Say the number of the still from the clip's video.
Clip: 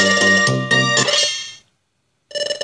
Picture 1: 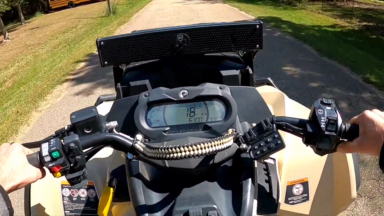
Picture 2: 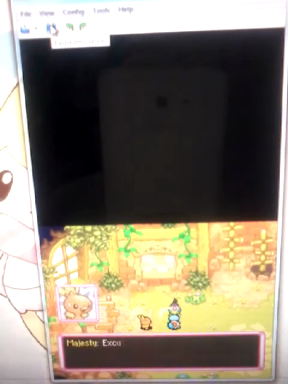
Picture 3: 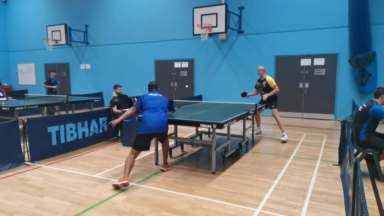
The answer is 2